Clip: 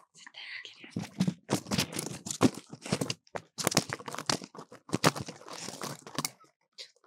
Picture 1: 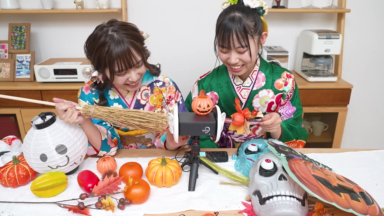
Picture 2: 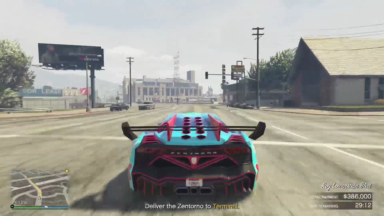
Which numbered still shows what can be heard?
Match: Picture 1